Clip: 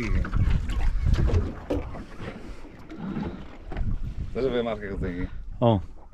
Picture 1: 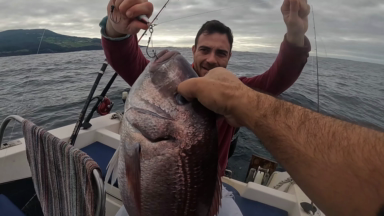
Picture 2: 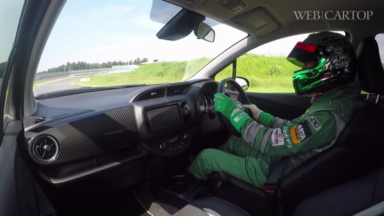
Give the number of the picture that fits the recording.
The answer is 1